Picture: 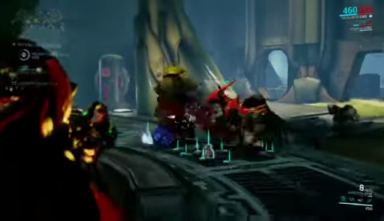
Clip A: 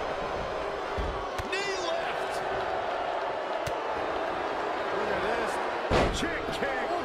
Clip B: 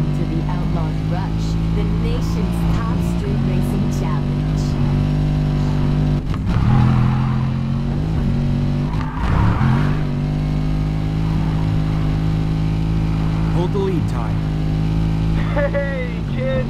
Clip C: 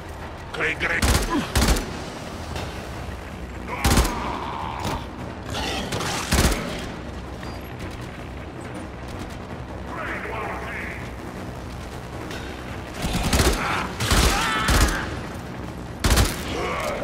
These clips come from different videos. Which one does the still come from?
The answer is C